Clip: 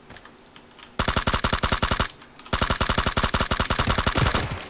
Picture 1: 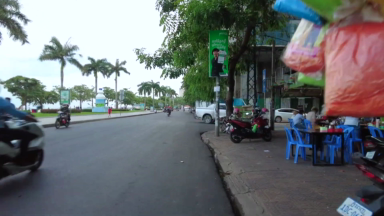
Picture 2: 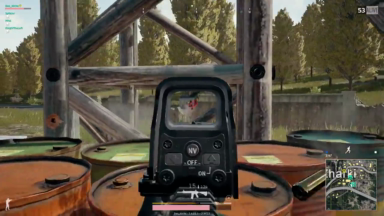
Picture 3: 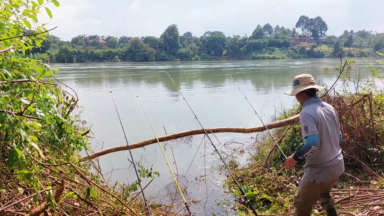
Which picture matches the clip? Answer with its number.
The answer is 2